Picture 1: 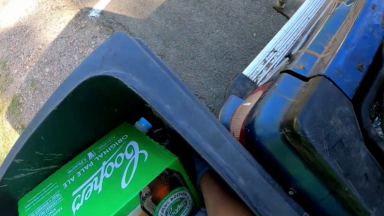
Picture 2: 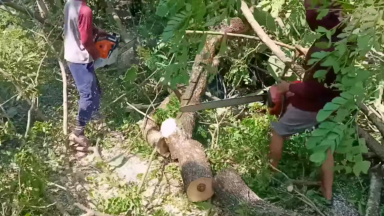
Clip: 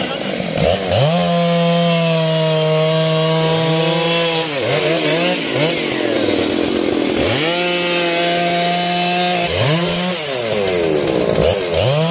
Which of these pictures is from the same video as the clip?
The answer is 2